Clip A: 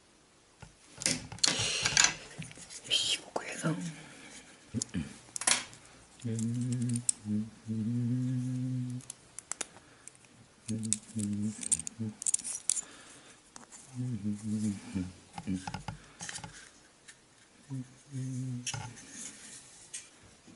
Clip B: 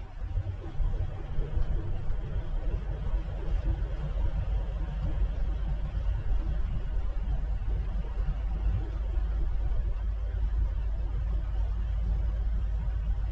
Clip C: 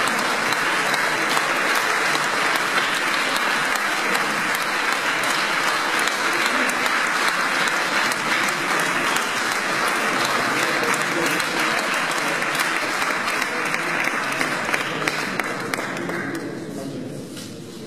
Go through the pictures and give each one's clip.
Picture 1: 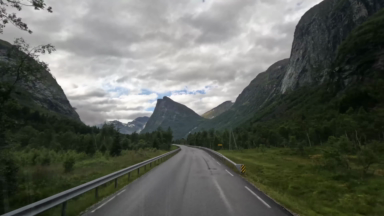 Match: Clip B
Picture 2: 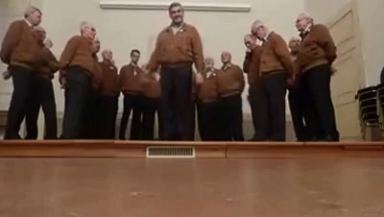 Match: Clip C